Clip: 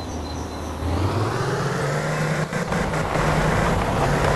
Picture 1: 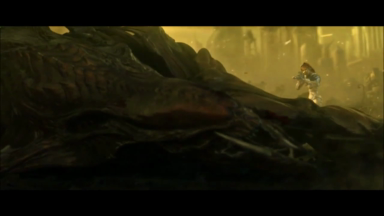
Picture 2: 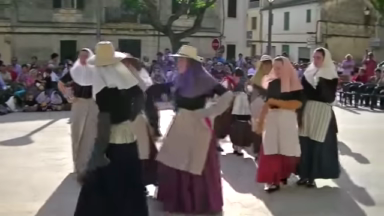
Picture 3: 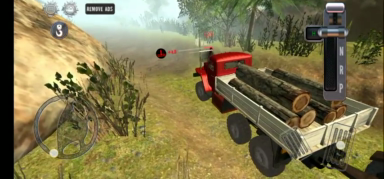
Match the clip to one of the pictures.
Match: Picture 3